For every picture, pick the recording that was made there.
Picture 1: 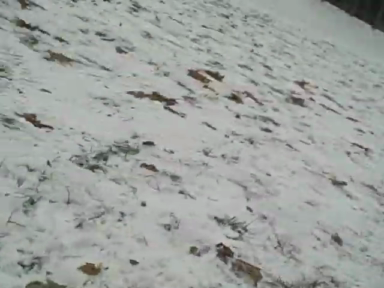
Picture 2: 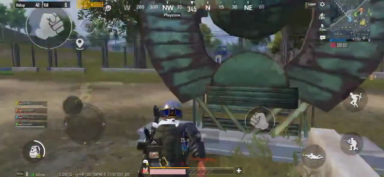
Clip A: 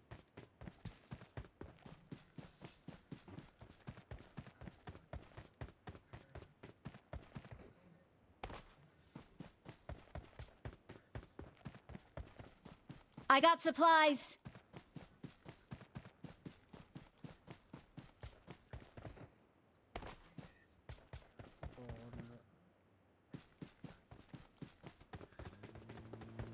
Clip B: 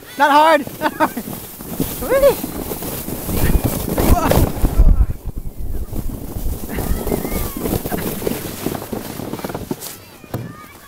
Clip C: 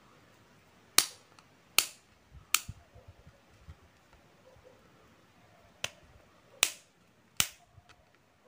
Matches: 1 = B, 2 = A